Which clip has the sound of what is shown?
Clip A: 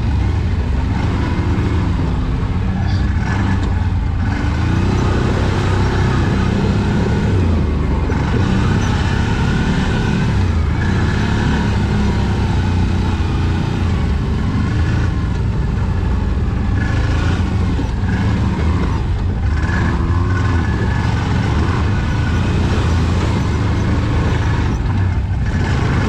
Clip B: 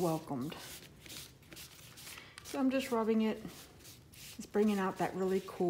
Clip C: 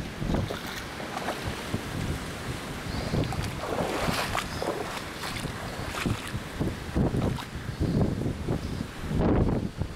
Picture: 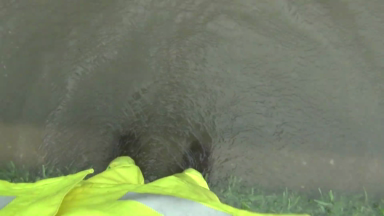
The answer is C